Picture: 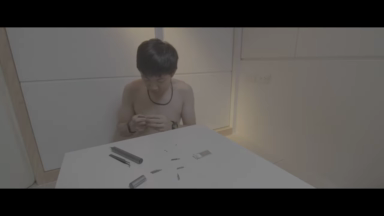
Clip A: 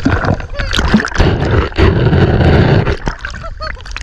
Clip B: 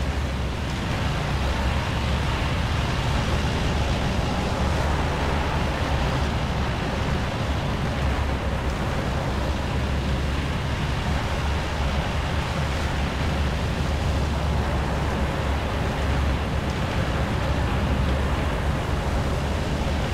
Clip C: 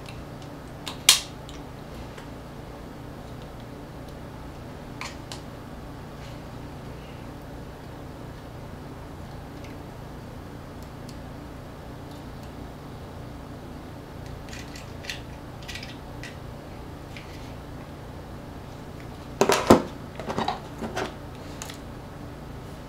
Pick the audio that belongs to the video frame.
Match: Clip C